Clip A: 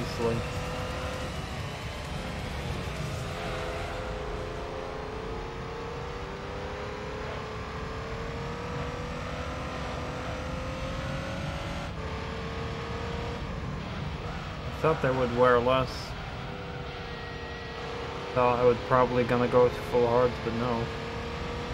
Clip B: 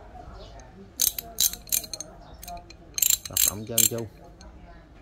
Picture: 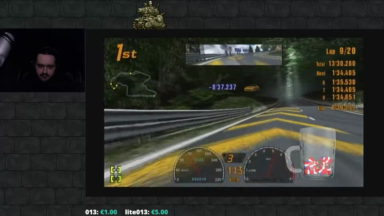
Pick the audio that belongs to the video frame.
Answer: A